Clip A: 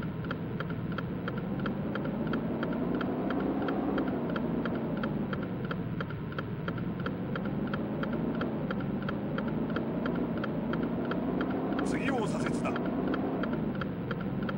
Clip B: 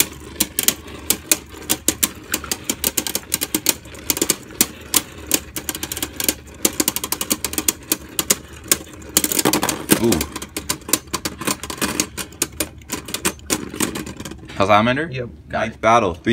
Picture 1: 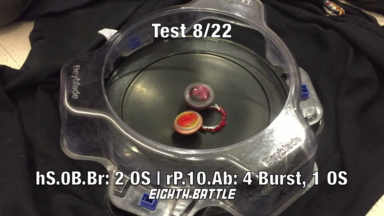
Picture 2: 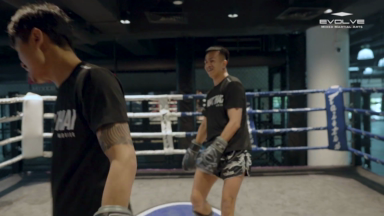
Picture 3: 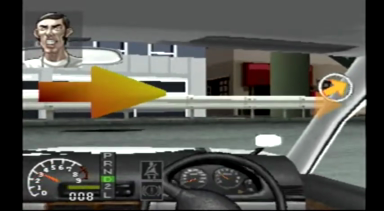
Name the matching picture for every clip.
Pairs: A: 3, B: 1